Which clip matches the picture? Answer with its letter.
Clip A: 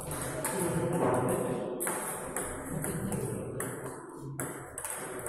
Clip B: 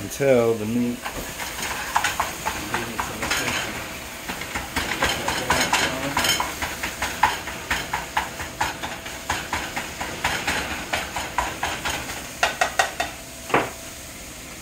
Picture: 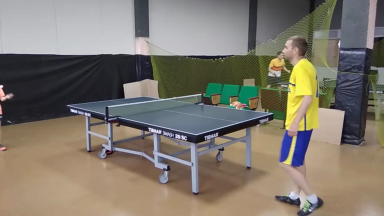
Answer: A